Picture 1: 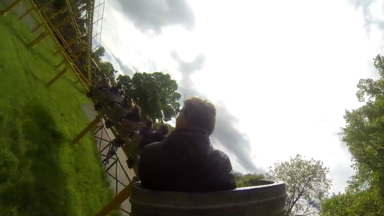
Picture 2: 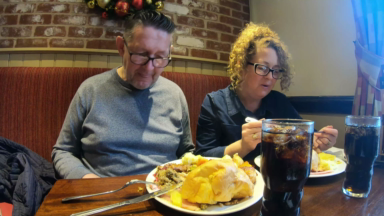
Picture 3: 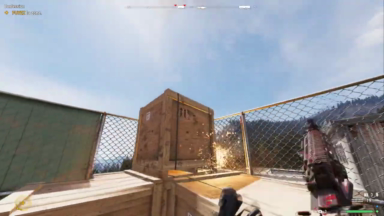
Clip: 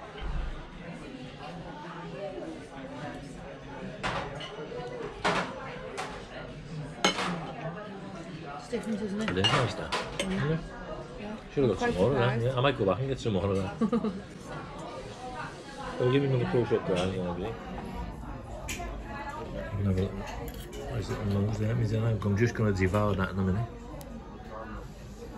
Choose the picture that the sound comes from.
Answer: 2